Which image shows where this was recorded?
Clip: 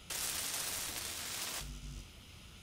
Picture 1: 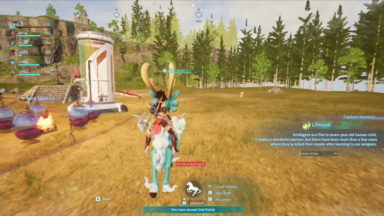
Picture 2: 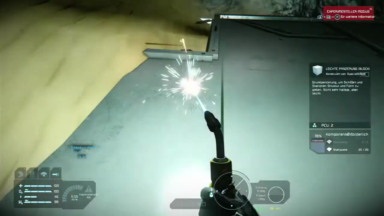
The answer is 2